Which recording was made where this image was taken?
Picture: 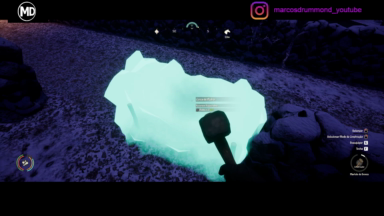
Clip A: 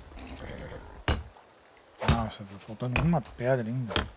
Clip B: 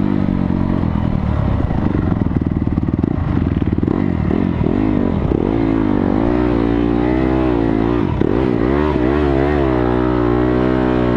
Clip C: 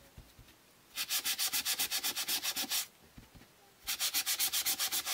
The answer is A